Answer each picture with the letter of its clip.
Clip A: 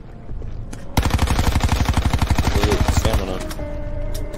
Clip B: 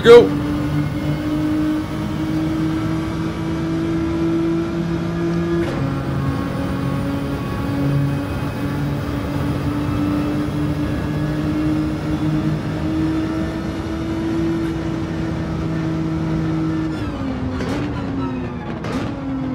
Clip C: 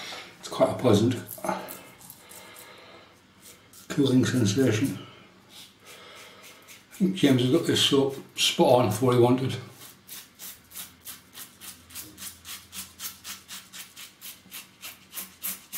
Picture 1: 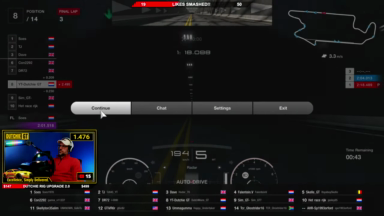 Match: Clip B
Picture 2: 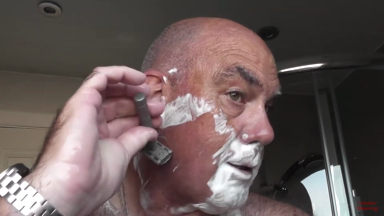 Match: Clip C